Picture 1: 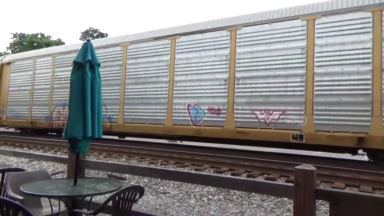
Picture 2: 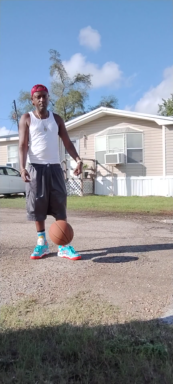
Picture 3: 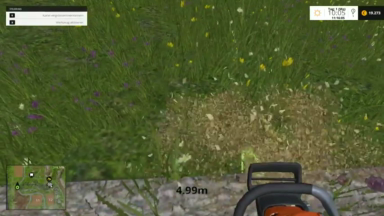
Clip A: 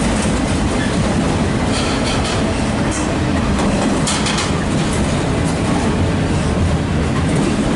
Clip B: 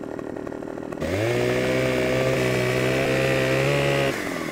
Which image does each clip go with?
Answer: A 1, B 3